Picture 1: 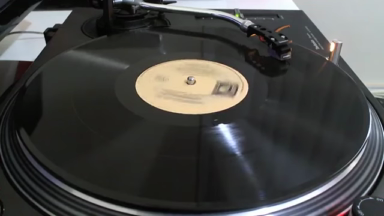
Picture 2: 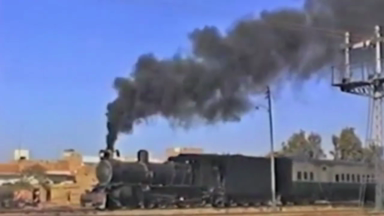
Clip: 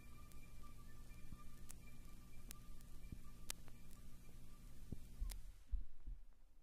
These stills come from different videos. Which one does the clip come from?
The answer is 1